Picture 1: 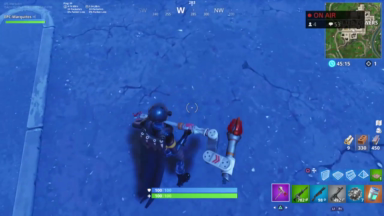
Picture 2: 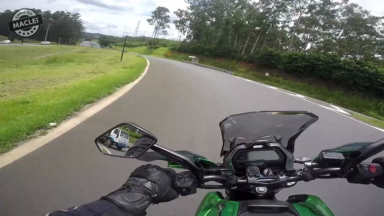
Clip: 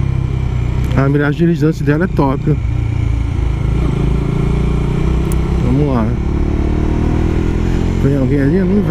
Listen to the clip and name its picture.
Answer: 2